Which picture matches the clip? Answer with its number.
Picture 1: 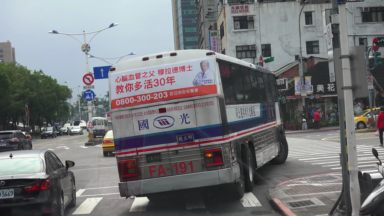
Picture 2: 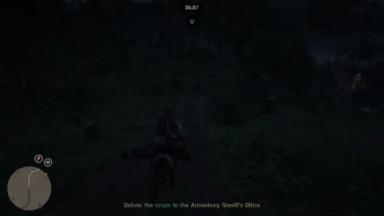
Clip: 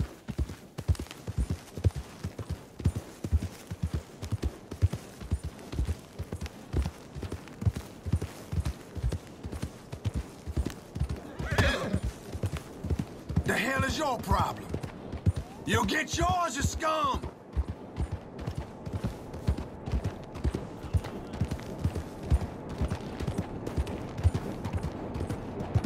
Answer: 2